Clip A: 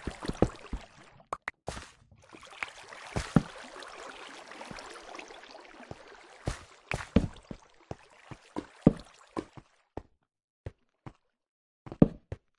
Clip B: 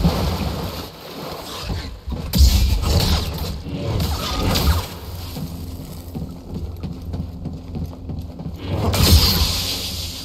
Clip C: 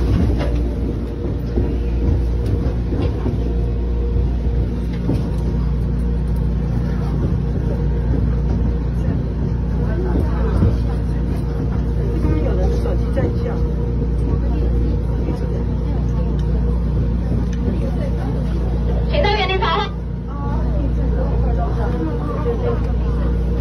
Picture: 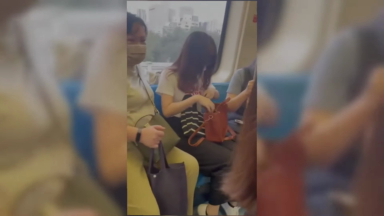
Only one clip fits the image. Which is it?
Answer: C